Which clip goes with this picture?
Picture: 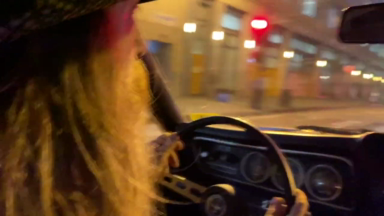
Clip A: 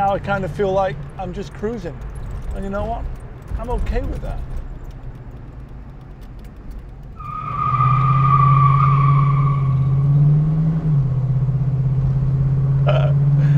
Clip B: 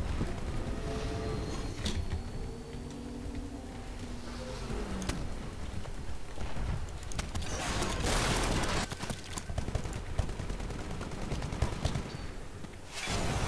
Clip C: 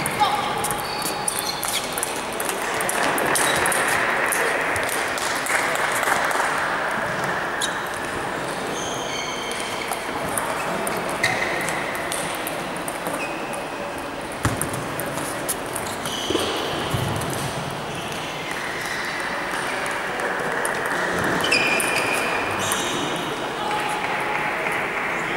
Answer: A